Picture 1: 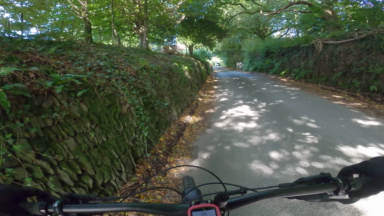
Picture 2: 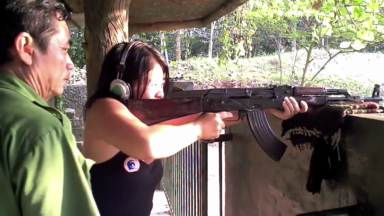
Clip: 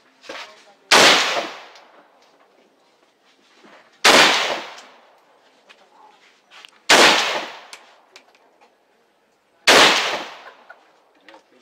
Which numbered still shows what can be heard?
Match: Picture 2